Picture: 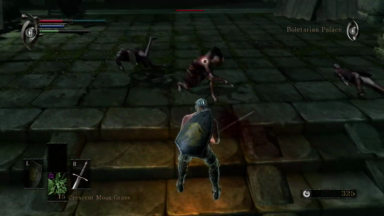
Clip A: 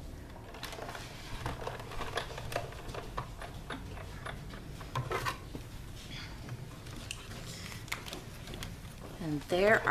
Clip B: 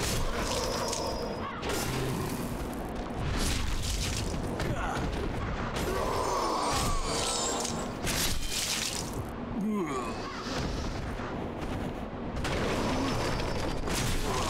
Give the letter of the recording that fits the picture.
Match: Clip B